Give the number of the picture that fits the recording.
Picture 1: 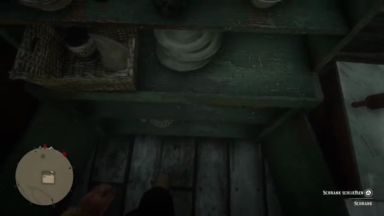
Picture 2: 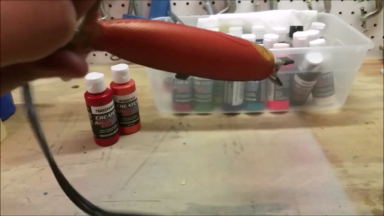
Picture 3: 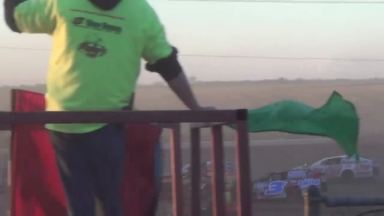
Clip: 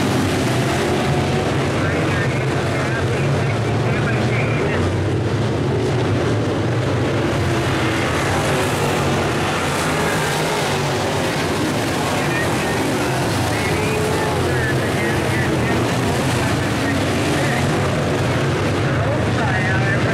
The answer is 3